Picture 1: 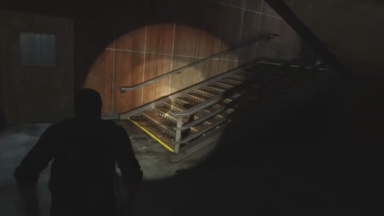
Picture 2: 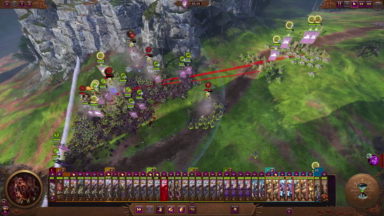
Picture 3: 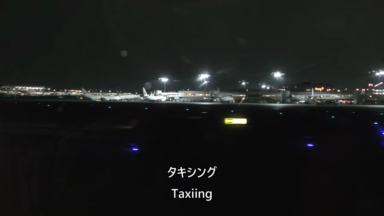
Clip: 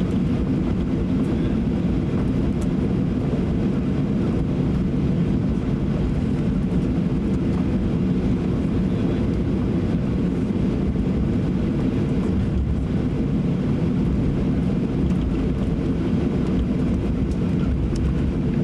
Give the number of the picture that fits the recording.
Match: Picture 3